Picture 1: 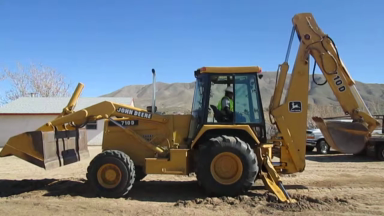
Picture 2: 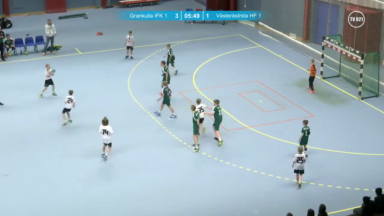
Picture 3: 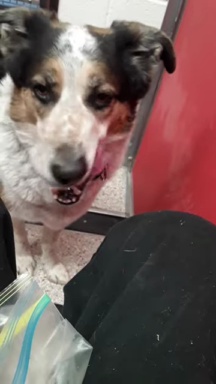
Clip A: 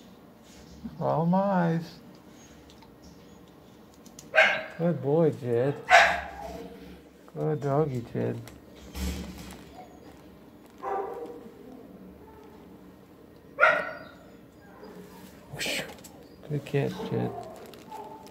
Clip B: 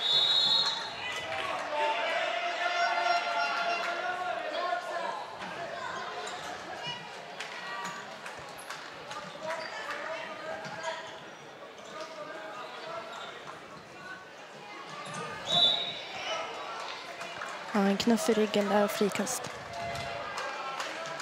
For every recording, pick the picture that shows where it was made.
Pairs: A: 3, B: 2